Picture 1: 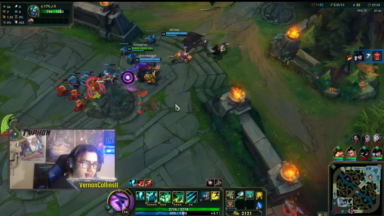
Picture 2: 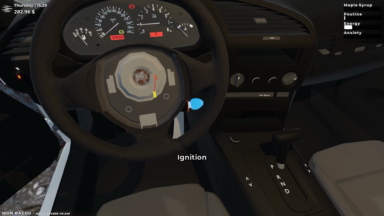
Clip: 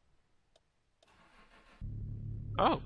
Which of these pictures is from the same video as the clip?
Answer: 2